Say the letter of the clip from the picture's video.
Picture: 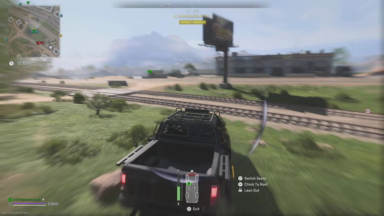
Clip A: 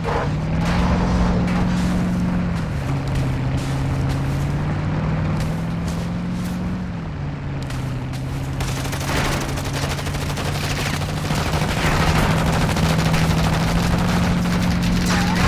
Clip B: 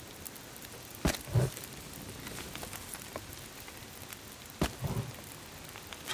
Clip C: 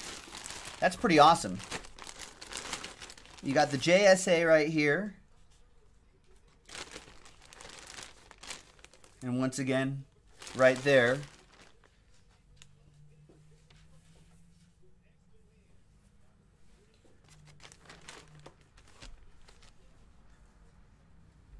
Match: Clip A